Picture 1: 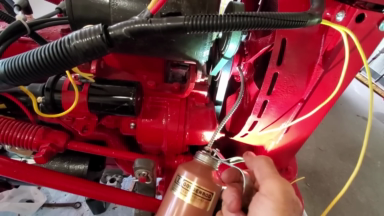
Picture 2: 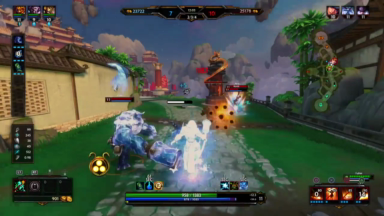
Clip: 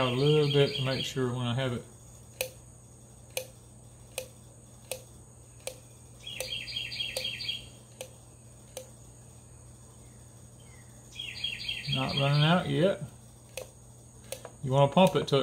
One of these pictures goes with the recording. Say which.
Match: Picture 1